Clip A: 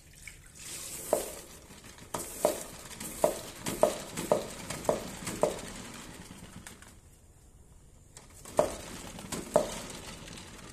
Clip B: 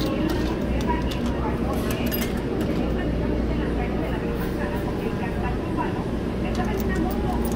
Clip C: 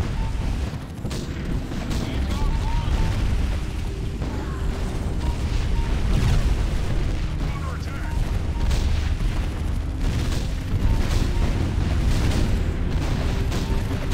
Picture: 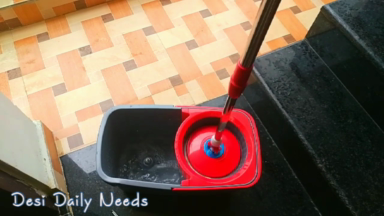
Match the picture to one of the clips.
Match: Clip A